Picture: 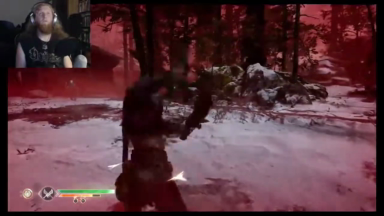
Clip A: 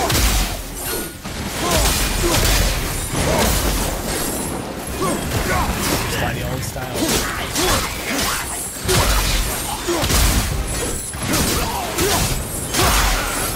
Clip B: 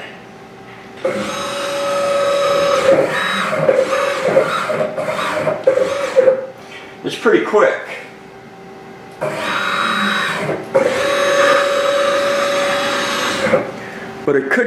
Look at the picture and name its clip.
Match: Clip A